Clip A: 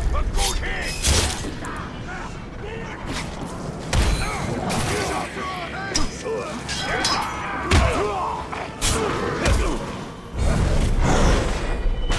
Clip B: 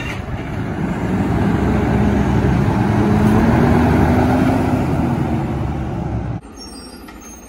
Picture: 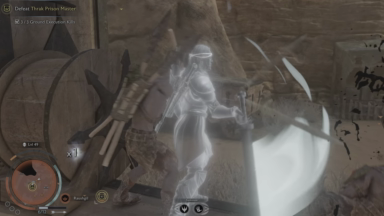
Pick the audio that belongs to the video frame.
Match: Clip A